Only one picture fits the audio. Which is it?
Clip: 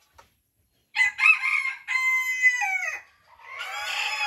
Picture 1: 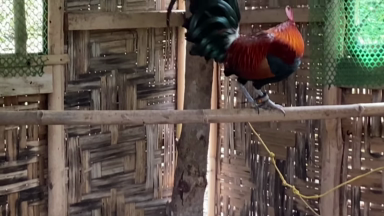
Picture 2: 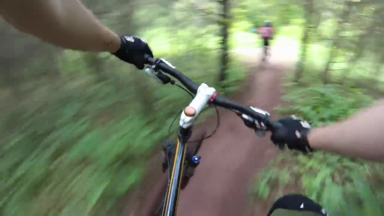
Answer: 1